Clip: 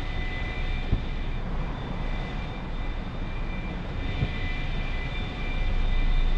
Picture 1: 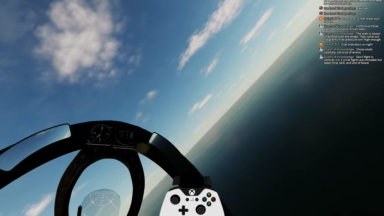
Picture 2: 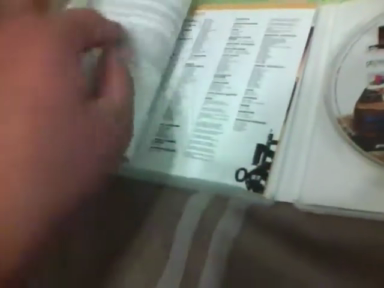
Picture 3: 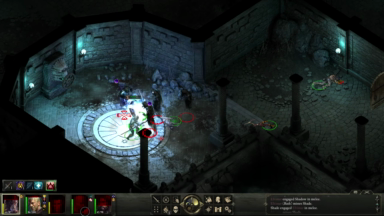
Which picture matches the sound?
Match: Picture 1